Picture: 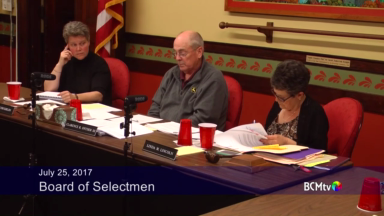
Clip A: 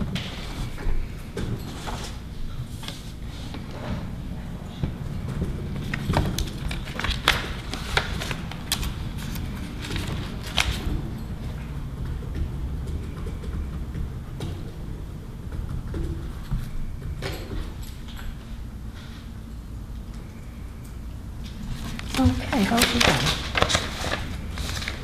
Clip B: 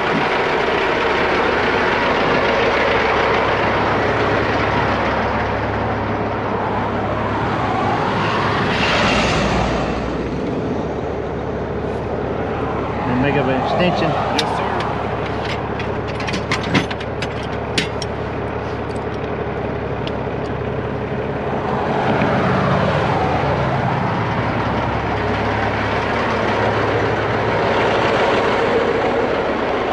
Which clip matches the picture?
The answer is A